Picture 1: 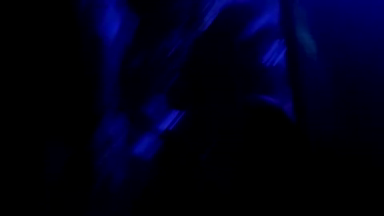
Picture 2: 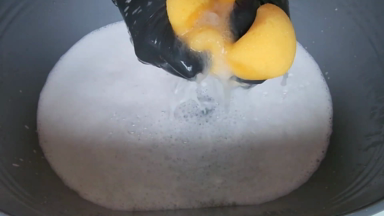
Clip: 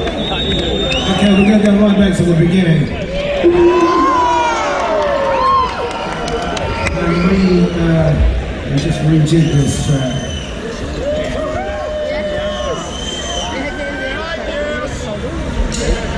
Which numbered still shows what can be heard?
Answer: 1